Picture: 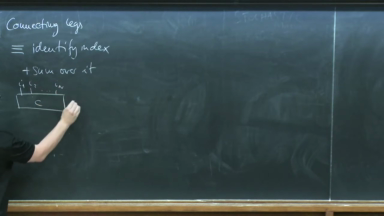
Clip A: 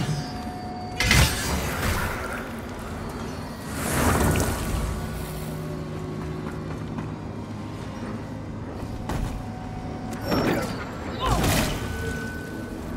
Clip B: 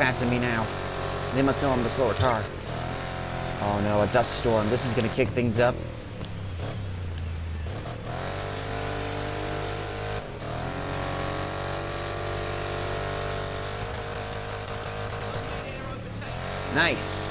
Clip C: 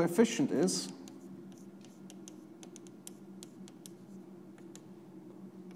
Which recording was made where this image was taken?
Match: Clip C